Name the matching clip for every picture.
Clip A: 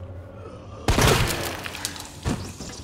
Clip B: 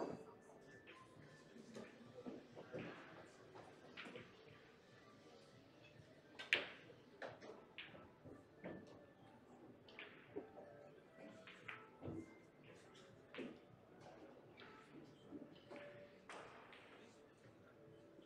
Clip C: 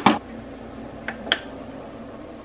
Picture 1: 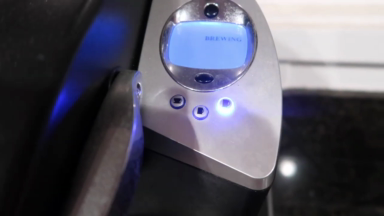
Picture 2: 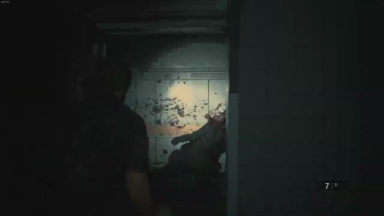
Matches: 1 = C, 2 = A